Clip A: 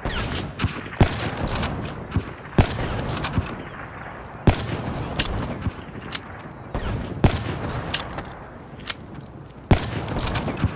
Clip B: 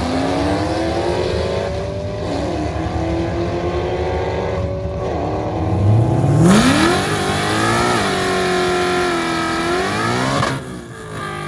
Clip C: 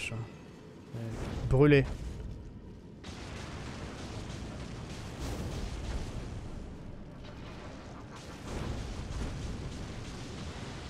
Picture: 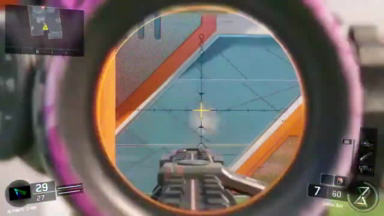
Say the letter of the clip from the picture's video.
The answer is A